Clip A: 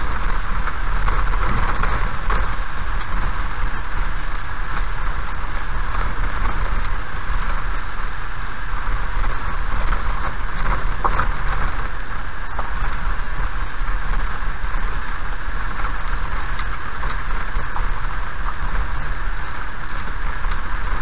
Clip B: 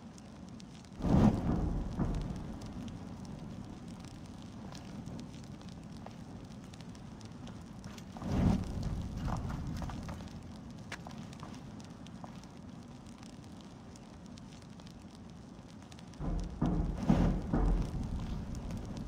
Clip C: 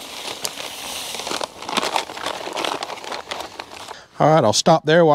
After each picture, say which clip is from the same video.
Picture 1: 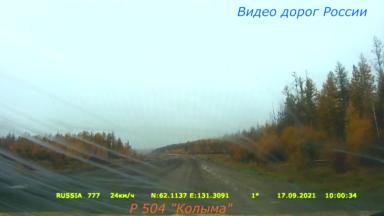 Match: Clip A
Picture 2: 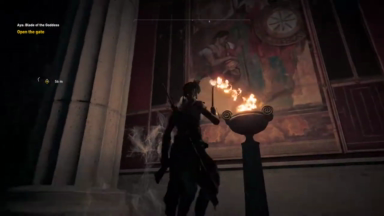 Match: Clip B